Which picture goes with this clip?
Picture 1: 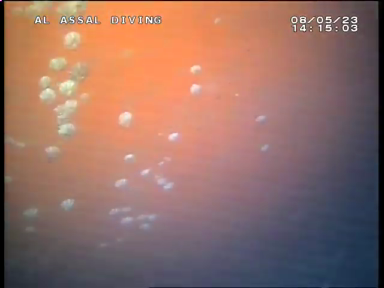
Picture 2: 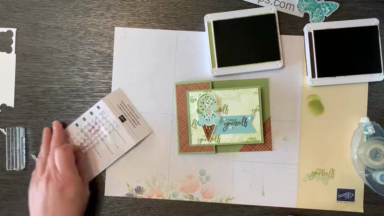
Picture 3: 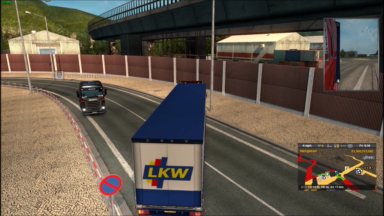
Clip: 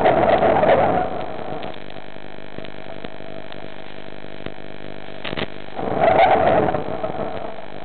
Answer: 1